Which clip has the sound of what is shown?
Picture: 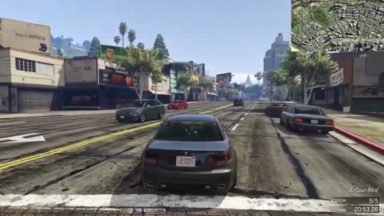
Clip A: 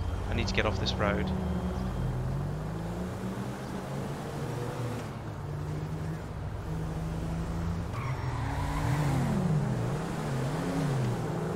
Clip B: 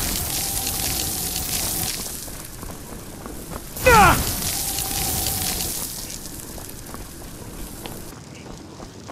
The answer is A